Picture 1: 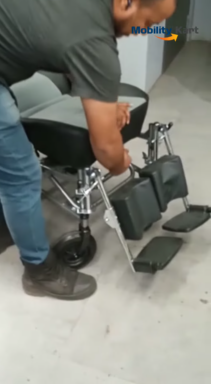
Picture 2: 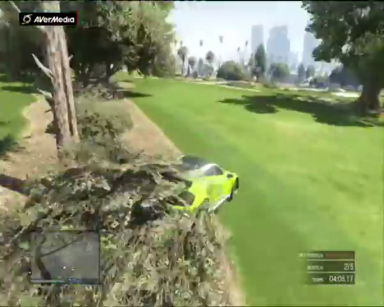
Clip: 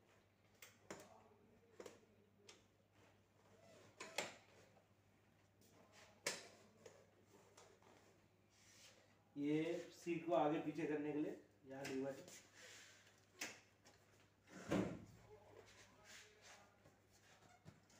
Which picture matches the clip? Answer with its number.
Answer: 1